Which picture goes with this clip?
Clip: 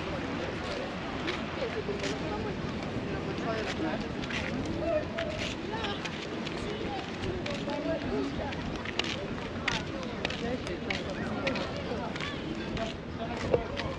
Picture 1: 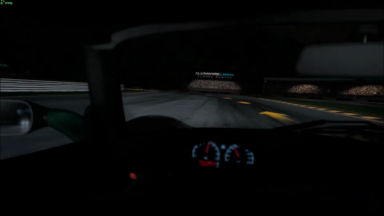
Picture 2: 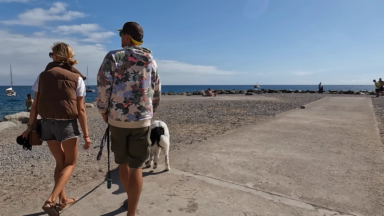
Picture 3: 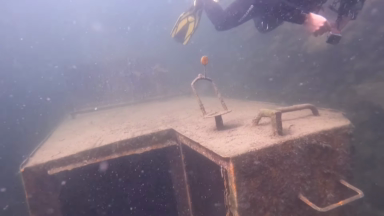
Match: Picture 2